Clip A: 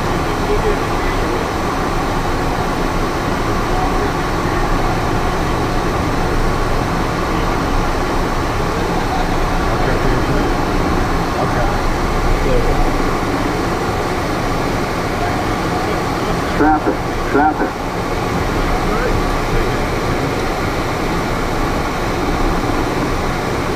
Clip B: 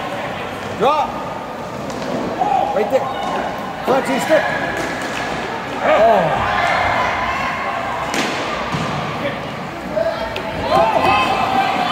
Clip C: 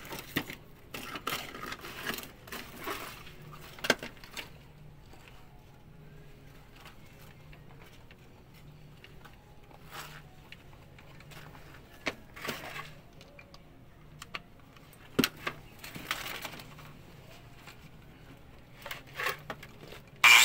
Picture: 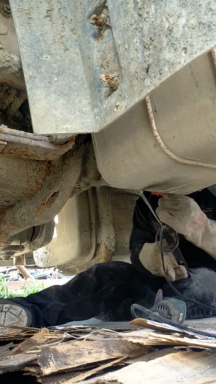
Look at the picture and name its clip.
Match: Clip C